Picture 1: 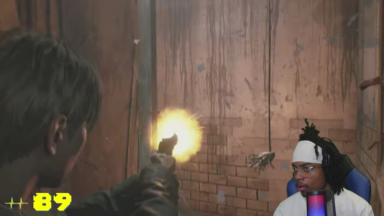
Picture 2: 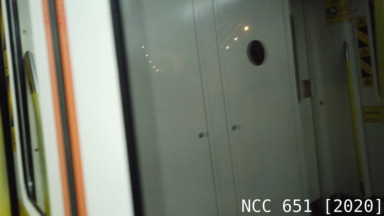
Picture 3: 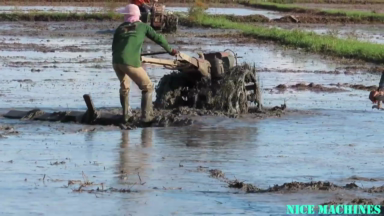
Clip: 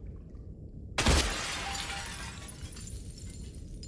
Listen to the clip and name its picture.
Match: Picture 1